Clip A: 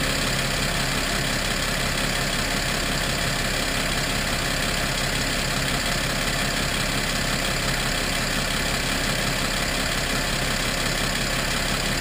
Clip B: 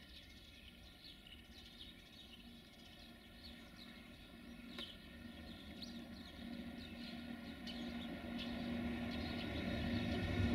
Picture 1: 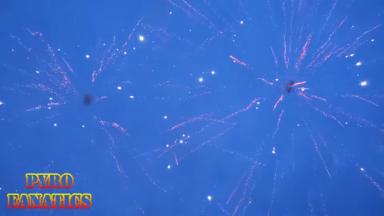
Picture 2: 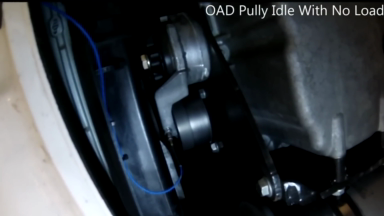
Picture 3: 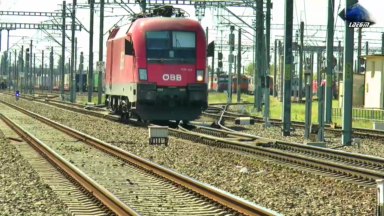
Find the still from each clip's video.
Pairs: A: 2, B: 3